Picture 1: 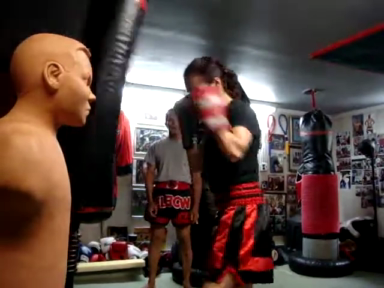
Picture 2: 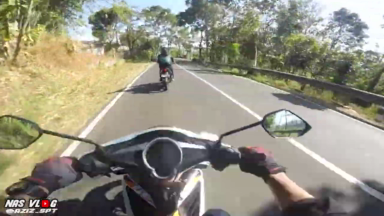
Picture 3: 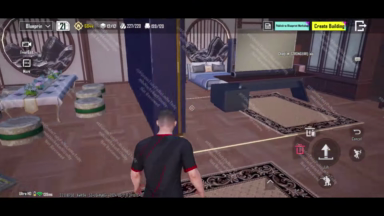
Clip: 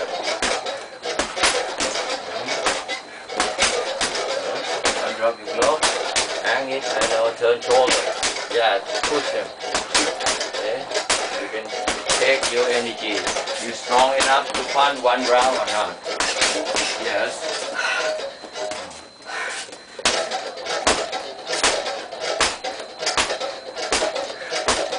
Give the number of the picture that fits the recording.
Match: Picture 1